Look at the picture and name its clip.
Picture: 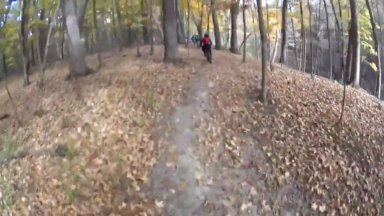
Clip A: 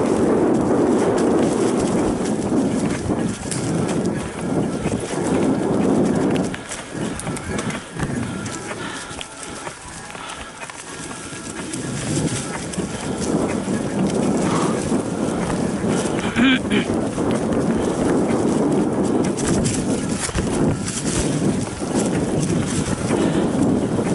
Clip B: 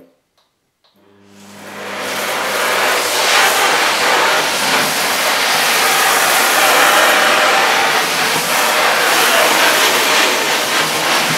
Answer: A